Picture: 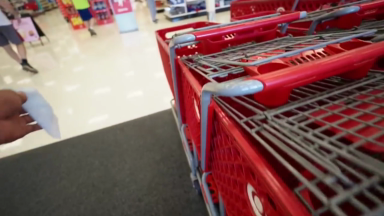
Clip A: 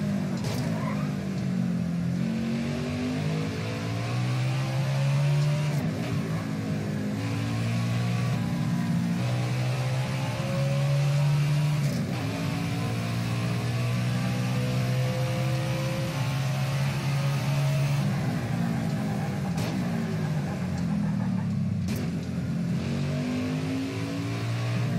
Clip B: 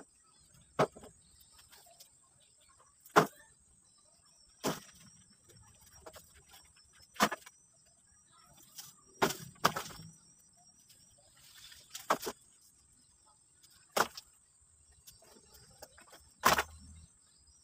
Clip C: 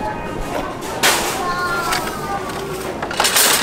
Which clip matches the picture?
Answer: C